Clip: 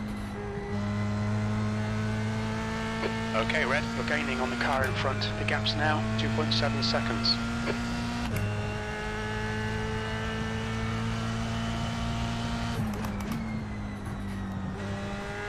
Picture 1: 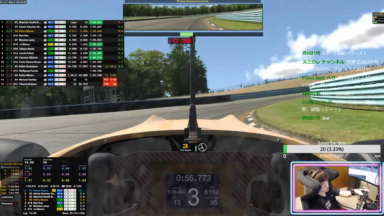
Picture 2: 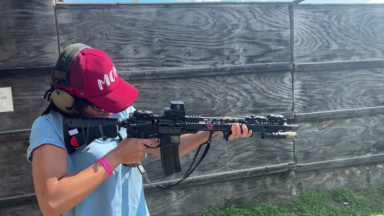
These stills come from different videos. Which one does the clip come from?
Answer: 1